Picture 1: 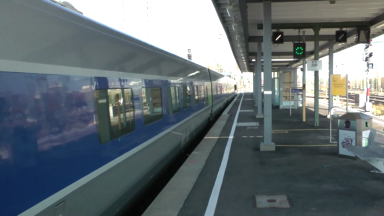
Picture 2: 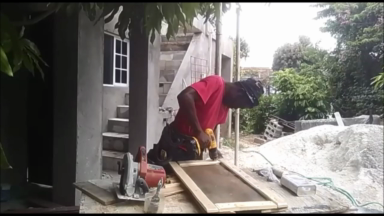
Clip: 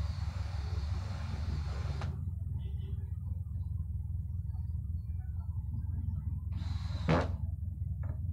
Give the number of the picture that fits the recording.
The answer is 2